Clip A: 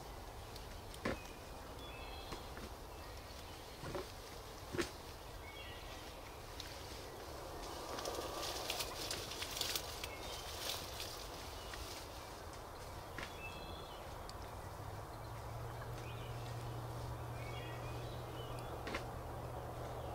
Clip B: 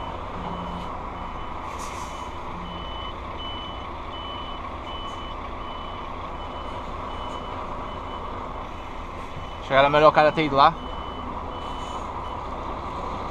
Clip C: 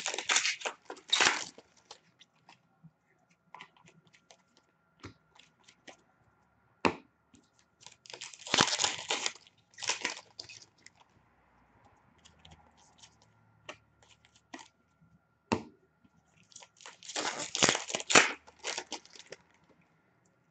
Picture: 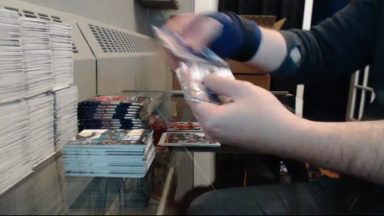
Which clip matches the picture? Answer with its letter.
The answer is C